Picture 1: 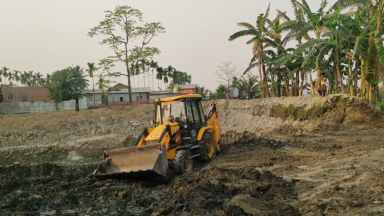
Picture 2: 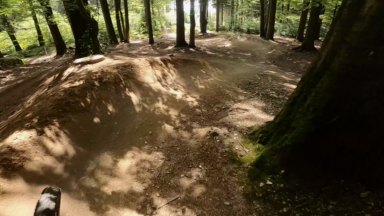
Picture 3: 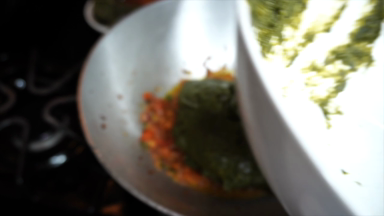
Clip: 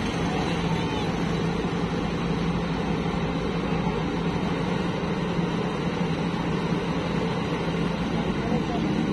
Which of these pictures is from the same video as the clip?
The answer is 1